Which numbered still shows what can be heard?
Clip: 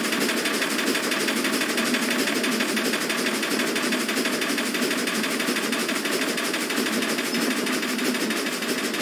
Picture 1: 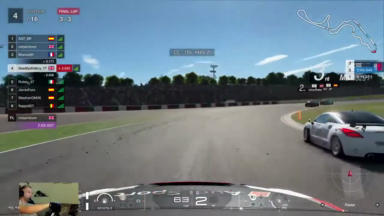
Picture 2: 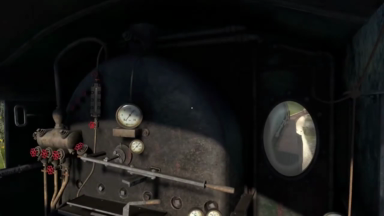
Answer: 2